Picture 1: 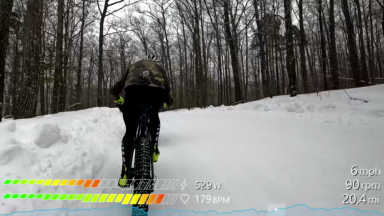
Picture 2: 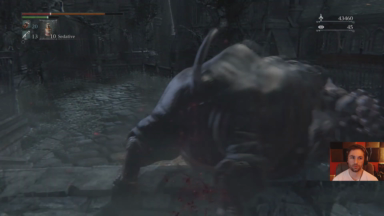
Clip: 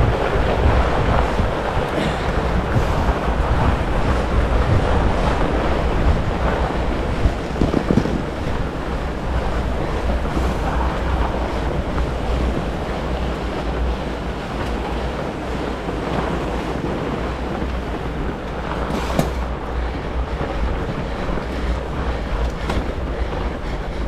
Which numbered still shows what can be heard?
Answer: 1